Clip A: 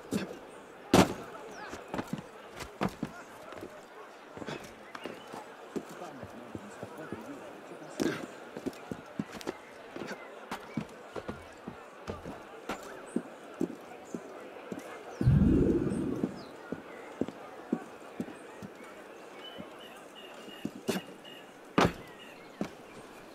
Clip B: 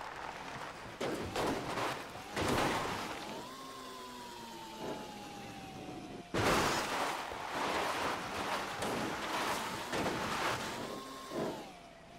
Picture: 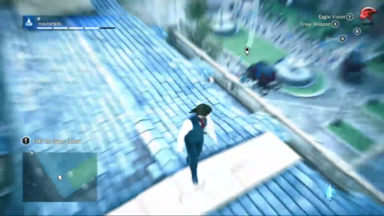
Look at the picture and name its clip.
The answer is A